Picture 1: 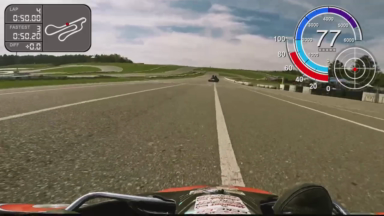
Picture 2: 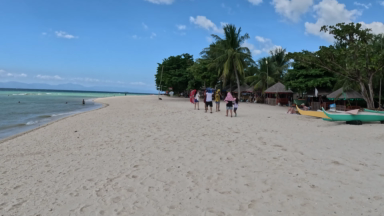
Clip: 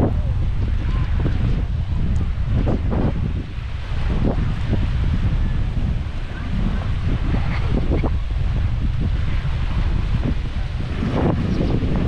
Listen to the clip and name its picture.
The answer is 2